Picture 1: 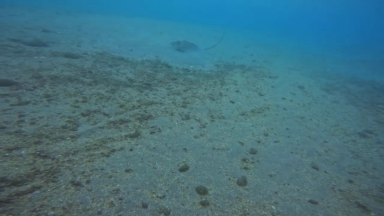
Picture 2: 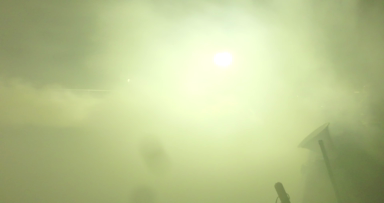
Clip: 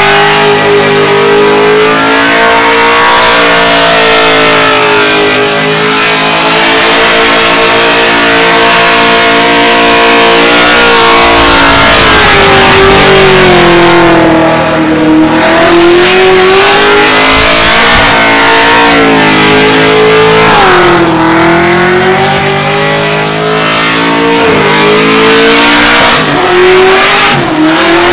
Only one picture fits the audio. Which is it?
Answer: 2